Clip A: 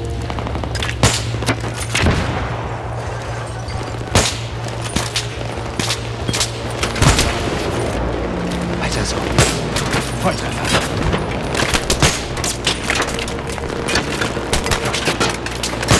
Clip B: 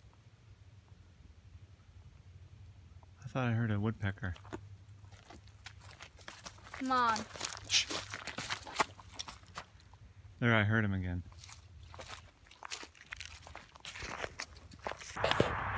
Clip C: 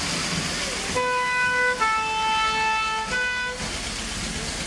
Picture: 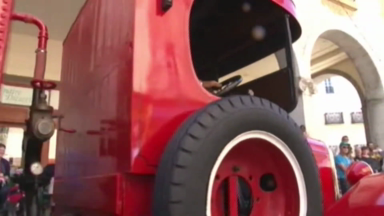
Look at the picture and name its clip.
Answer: C